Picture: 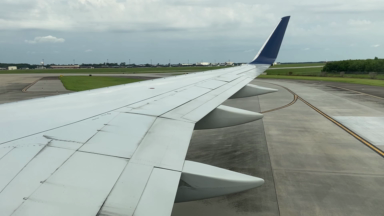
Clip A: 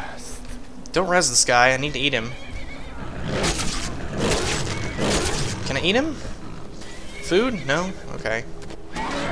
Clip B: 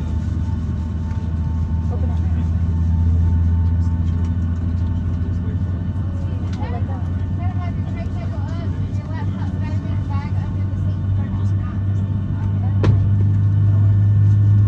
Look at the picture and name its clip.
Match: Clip B